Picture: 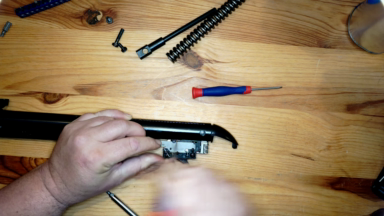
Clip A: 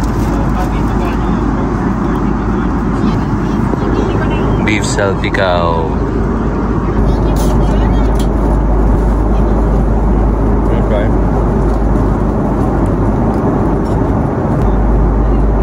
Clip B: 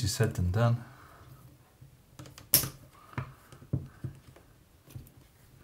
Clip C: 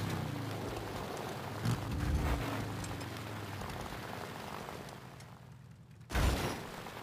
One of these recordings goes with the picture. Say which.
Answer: B